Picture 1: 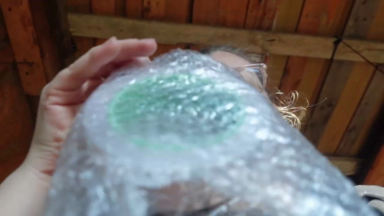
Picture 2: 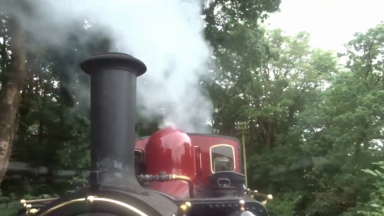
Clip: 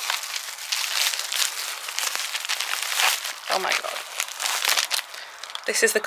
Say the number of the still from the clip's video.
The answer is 1